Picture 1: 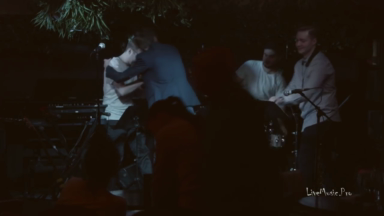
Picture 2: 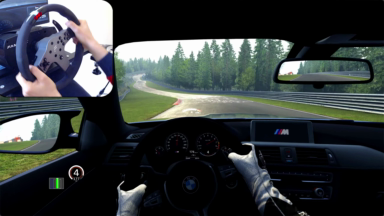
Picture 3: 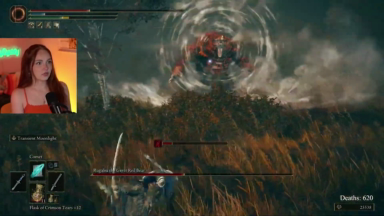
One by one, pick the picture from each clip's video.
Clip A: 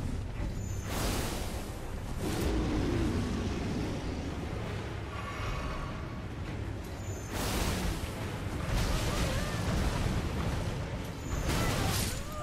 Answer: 3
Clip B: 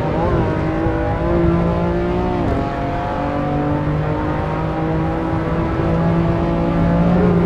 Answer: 2